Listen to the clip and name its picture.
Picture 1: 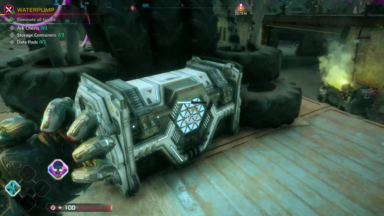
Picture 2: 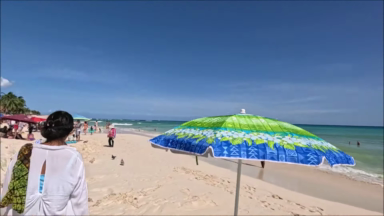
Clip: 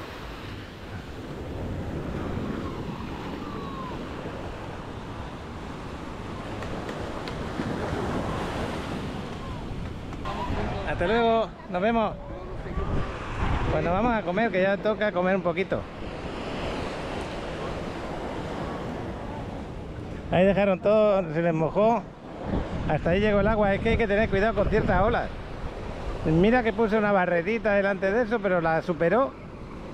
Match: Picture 2